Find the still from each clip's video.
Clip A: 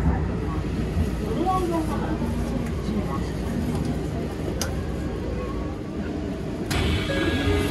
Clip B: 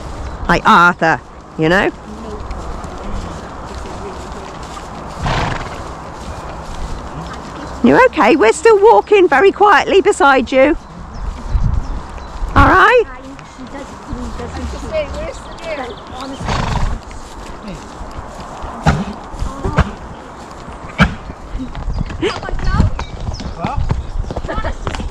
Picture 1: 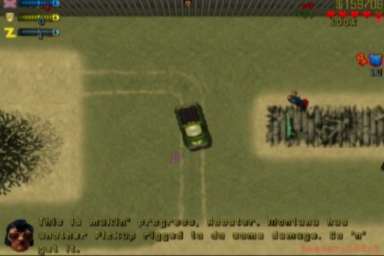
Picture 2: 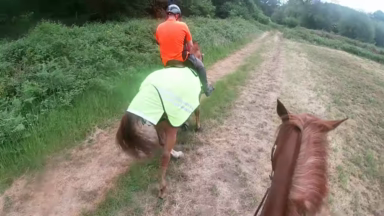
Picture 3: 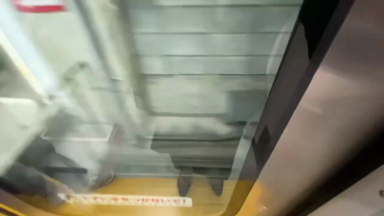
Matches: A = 3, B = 2